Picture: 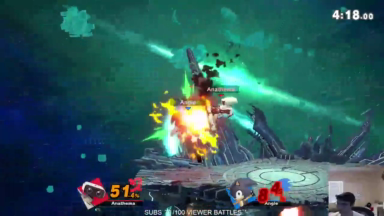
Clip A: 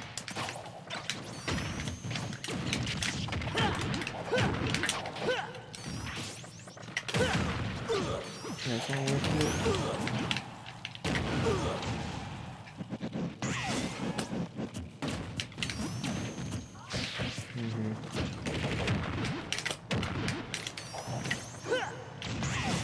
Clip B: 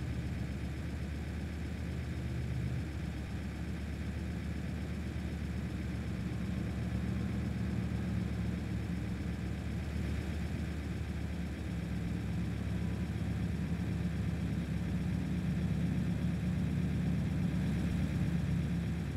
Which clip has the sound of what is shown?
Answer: A